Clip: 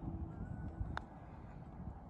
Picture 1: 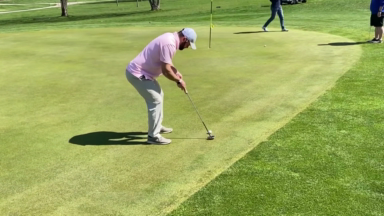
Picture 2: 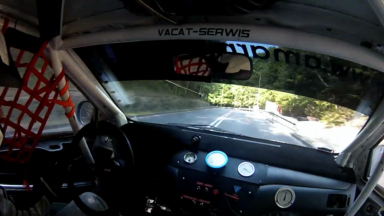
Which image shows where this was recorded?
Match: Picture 1